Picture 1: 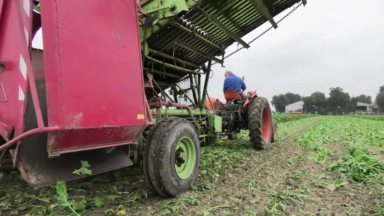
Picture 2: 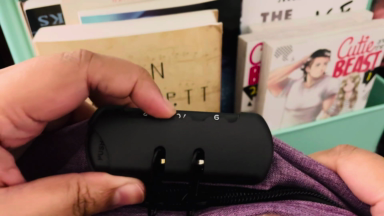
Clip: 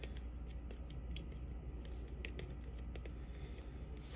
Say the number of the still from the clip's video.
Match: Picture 2